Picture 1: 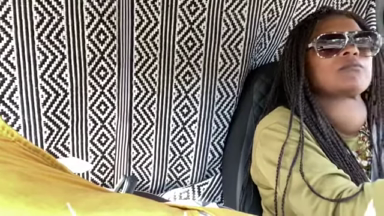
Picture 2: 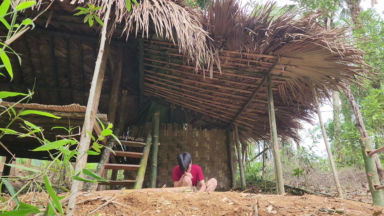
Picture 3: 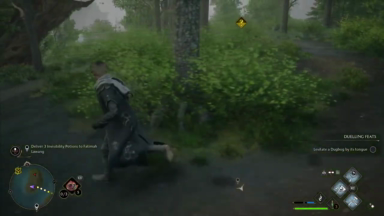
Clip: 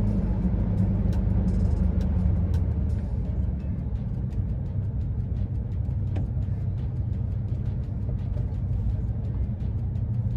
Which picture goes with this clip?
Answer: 1